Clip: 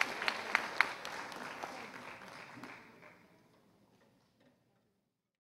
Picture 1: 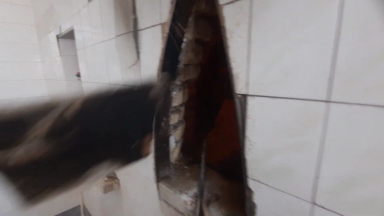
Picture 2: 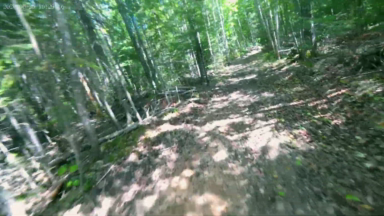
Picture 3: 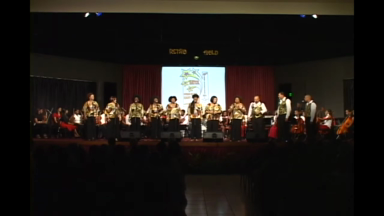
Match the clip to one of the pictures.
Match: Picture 3